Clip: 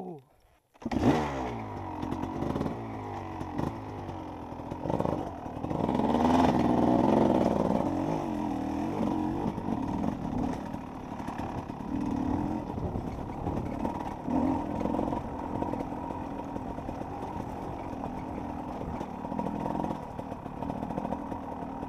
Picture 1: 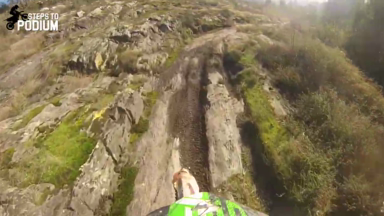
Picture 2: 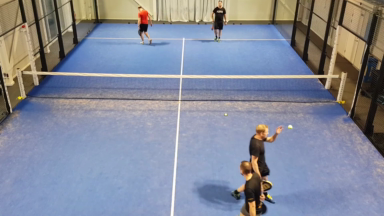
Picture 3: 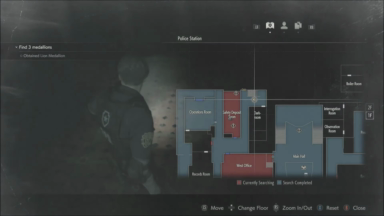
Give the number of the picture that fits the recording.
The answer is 1